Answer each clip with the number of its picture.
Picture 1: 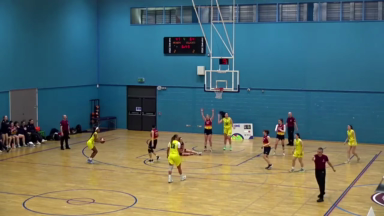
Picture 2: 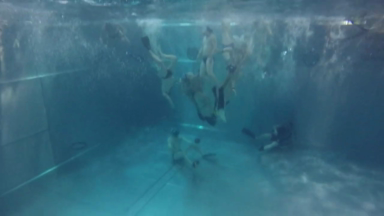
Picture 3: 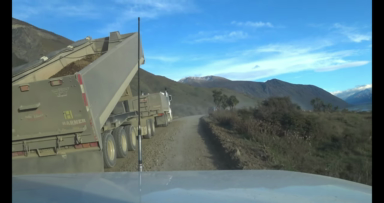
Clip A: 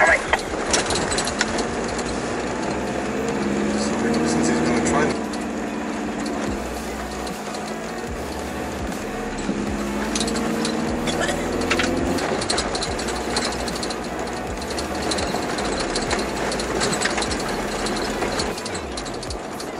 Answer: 3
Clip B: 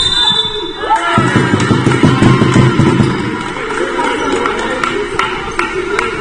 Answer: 1